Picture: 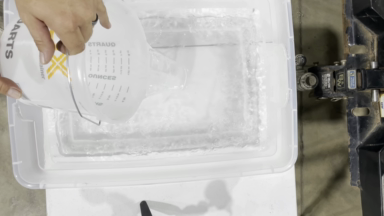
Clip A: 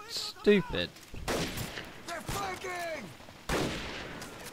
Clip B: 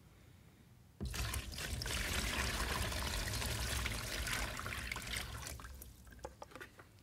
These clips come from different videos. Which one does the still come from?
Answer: B